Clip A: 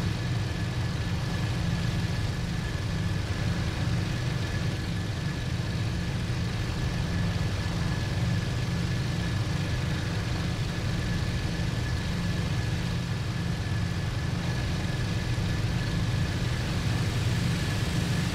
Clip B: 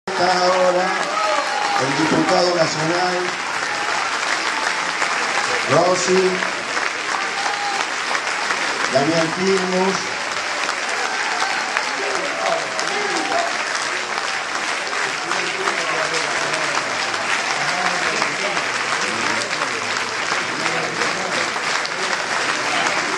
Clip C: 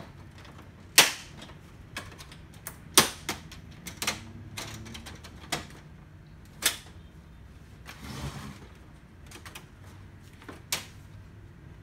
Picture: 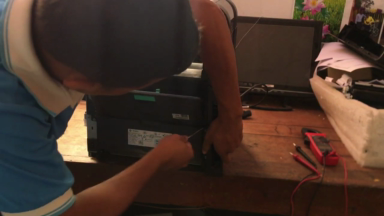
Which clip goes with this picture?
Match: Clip C